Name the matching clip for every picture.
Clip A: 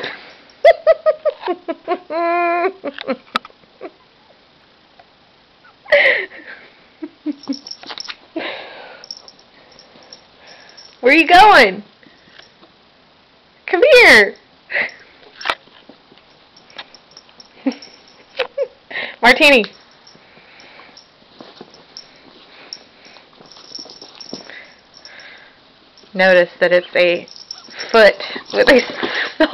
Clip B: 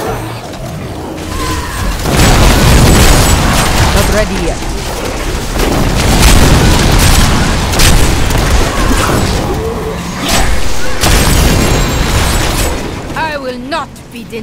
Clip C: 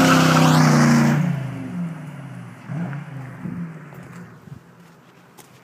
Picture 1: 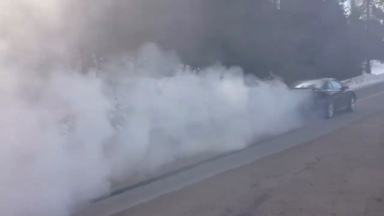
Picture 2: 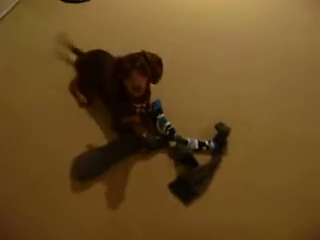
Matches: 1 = C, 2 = A